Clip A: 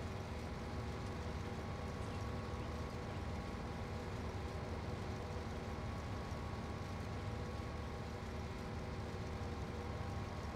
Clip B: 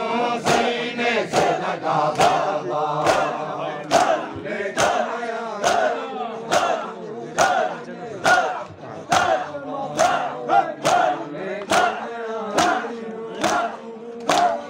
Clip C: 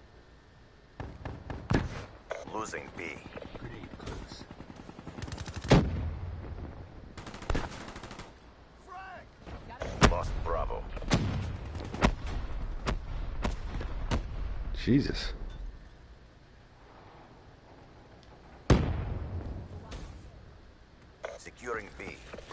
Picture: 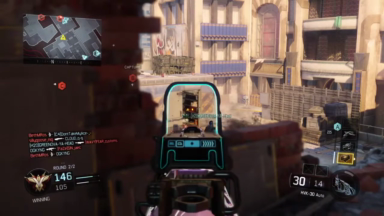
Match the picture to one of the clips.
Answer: C